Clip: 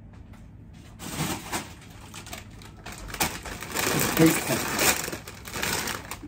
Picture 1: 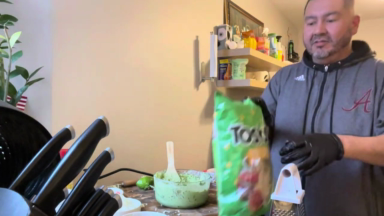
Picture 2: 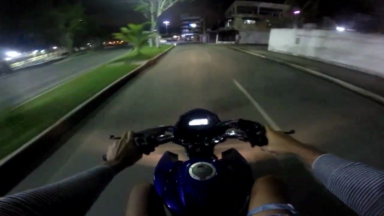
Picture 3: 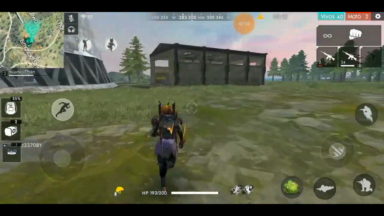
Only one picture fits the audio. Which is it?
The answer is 1